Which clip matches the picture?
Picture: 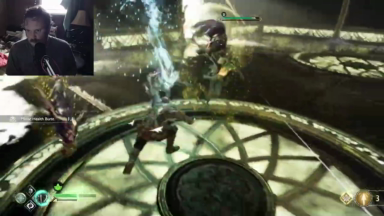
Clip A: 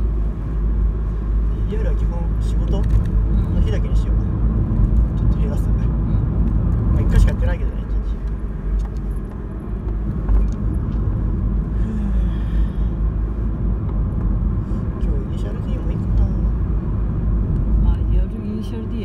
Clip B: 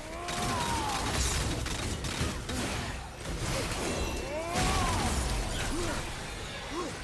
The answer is B